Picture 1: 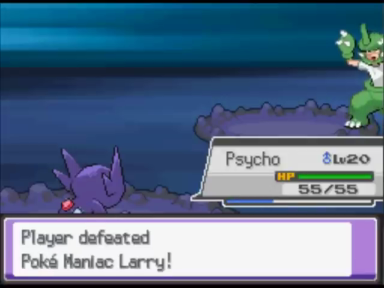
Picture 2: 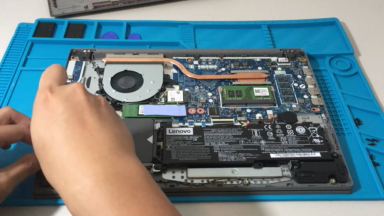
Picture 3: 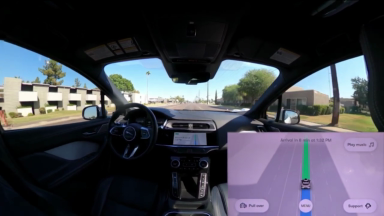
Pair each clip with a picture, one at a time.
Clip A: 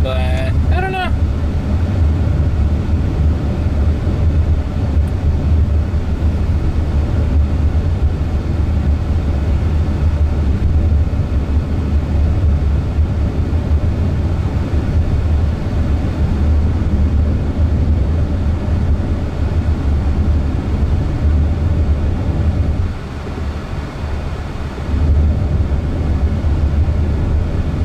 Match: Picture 3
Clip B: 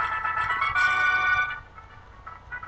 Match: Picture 1